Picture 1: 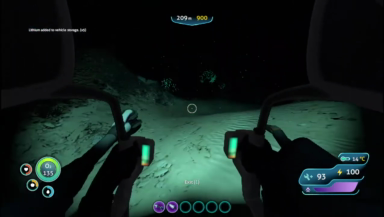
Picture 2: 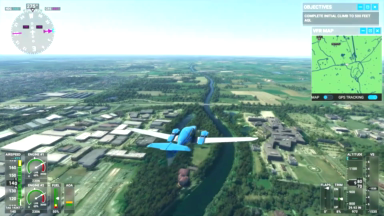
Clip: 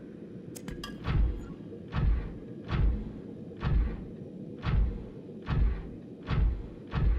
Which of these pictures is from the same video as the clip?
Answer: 1